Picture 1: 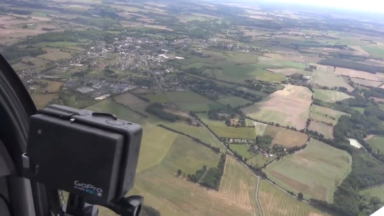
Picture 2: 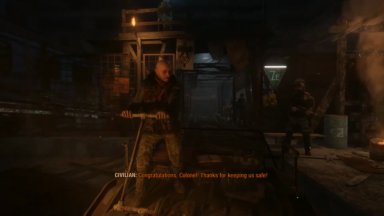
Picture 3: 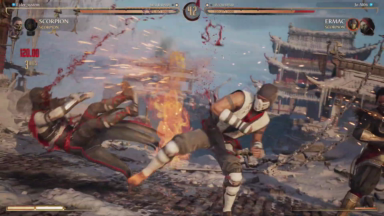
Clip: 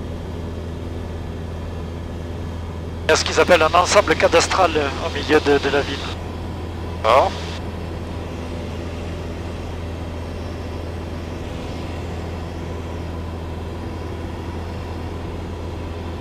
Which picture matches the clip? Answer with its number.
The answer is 1